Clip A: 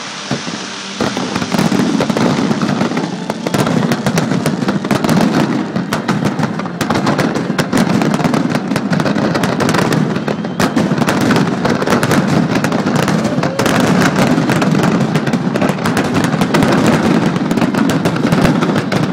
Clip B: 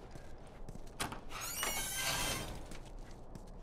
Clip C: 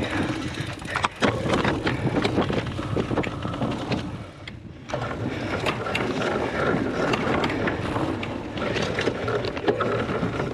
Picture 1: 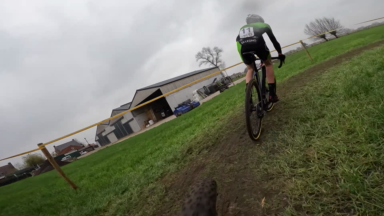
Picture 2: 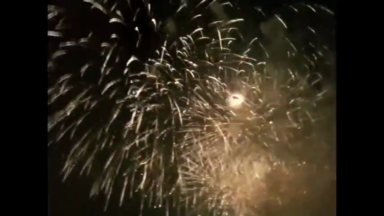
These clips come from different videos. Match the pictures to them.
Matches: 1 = C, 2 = A